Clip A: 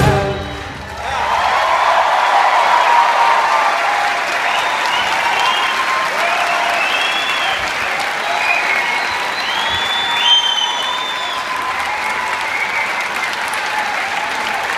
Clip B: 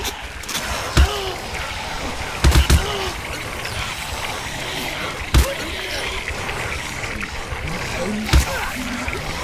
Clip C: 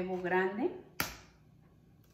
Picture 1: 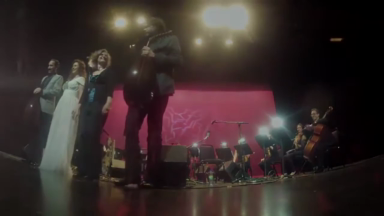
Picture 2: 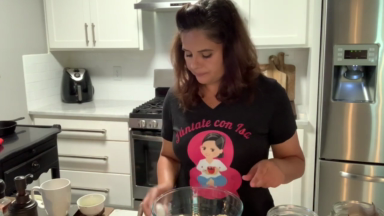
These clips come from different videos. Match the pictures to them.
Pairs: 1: A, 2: C